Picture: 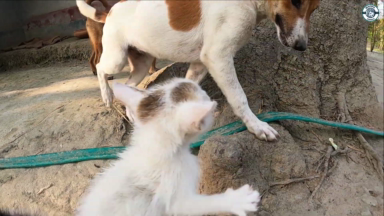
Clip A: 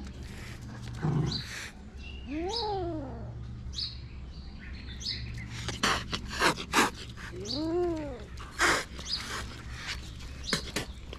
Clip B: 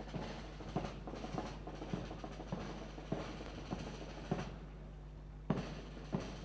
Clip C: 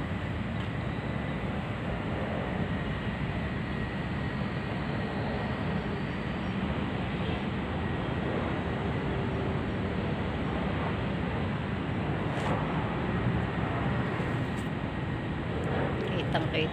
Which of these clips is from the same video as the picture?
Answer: A